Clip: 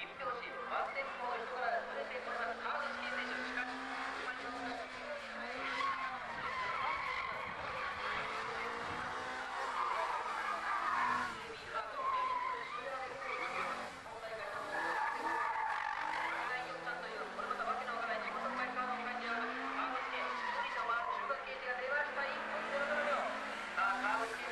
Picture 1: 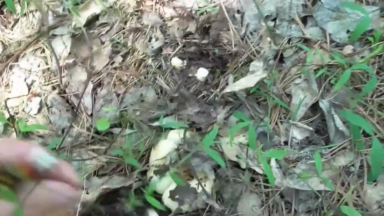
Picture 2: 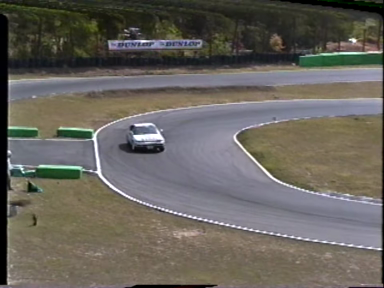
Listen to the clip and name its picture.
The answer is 2